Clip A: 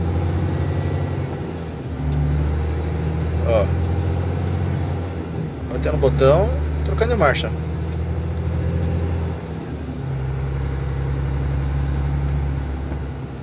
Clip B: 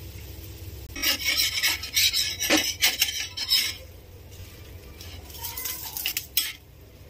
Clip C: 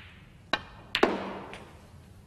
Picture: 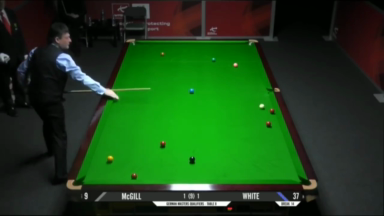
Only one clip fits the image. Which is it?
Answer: C